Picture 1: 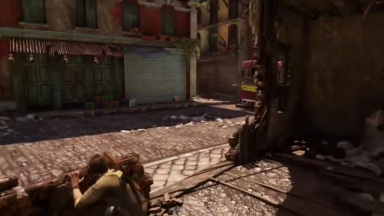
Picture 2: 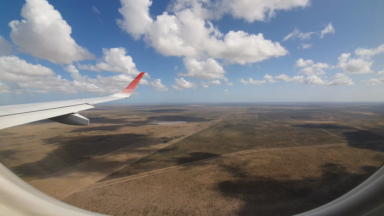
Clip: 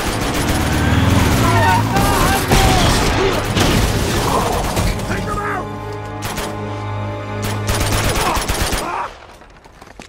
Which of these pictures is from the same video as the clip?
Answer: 1